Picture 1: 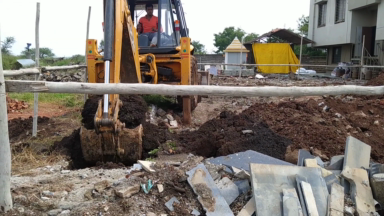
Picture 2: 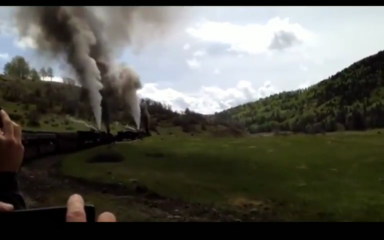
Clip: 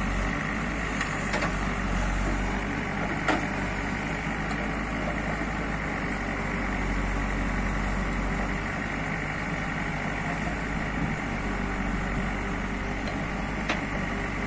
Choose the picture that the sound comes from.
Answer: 1